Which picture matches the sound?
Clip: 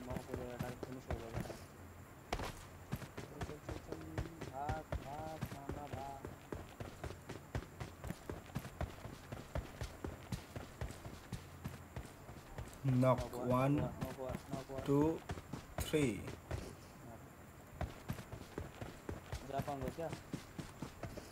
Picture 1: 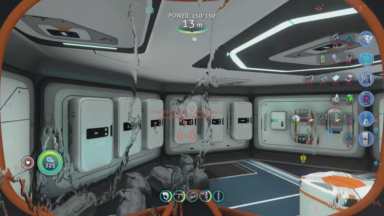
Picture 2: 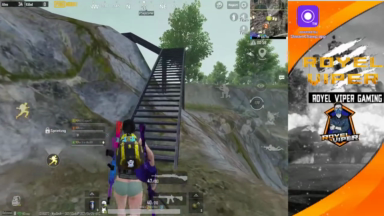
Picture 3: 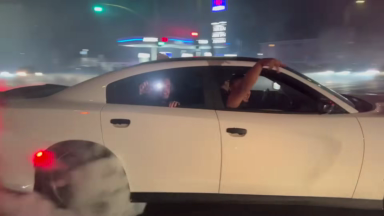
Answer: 2